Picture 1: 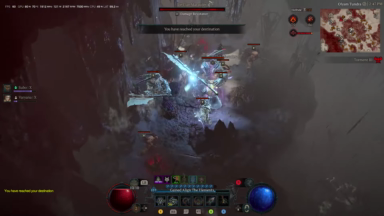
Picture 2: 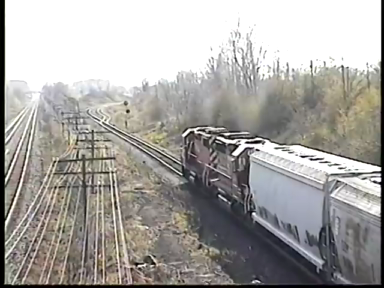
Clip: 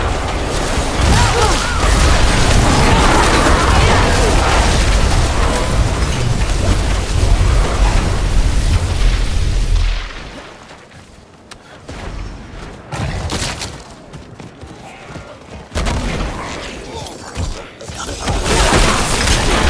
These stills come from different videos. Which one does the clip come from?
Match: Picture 1